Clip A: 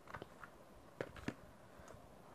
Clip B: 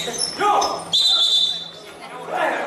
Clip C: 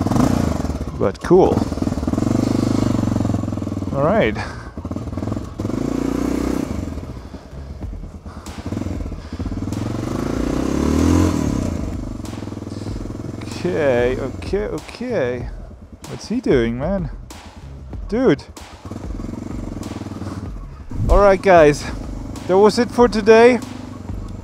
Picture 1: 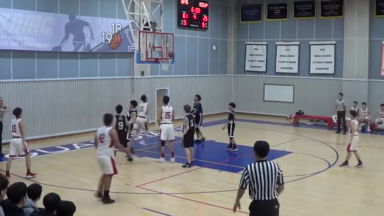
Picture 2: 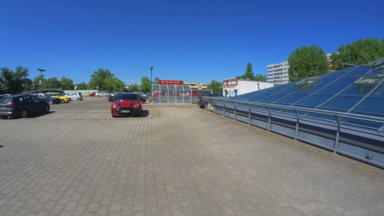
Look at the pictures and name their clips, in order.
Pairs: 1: B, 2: C